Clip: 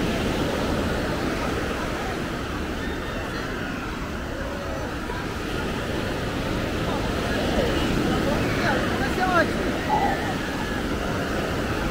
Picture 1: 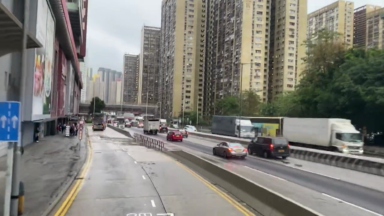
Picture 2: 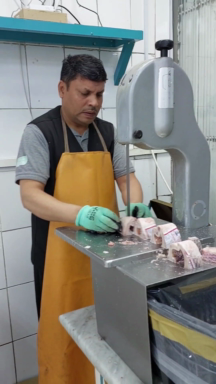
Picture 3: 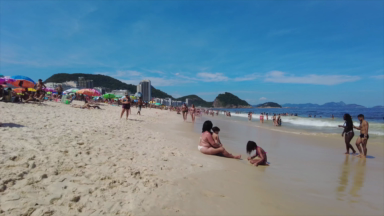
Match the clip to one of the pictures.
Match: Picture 3